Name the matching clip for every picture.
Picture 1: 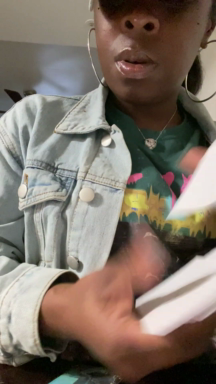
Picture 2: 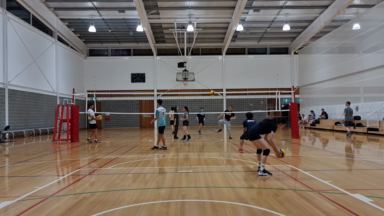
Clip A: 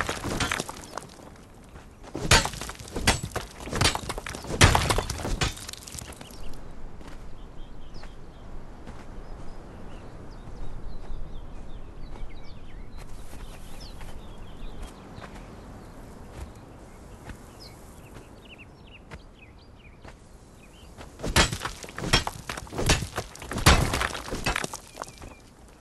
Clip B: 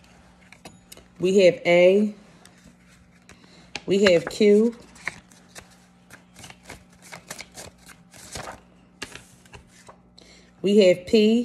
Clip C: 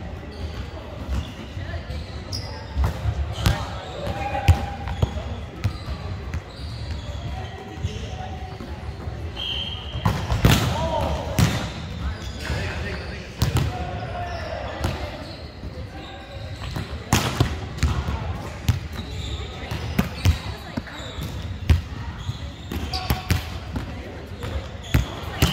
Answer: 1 B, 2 C